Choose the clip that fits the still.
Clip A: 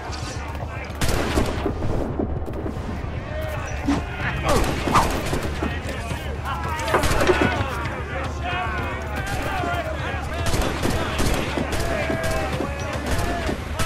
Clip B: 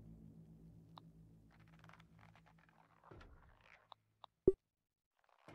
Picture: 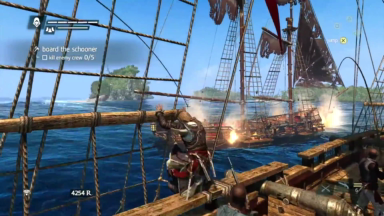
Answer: A